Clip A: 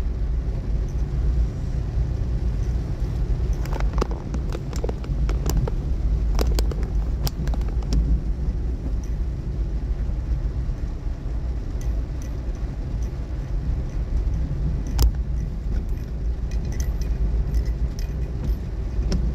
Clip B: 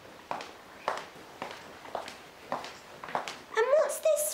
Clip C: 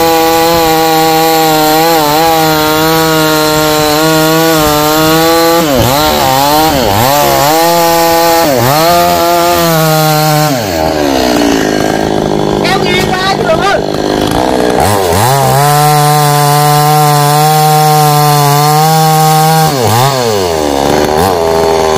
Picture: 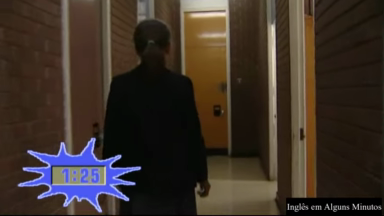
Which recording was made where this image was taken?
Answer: B